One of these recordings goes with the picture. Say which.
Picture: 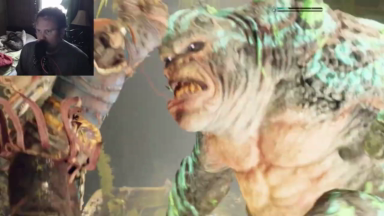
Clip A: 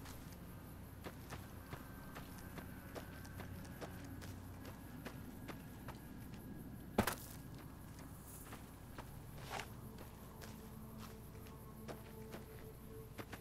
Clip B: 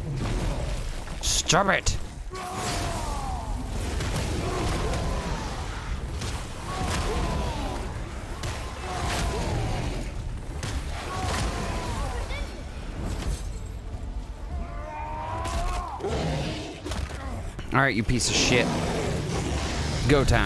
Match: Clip B